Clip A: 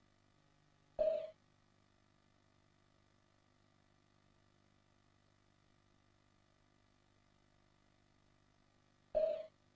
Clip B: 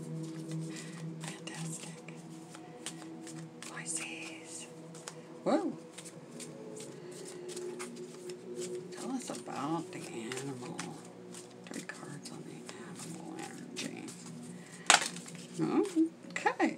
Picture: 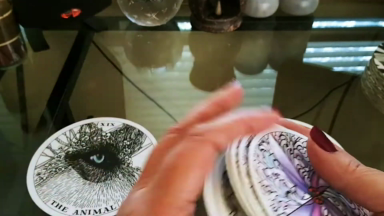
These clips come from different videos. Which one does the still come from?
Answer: B